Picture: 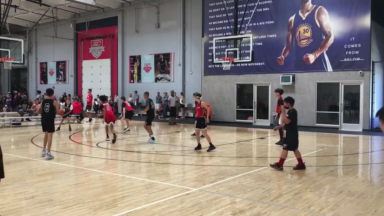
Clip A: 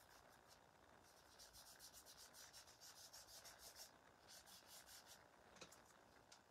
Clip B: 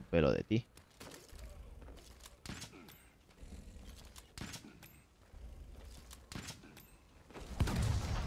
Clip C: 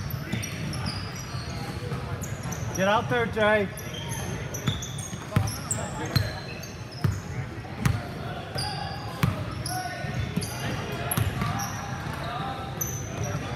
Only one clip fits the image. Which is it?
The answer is C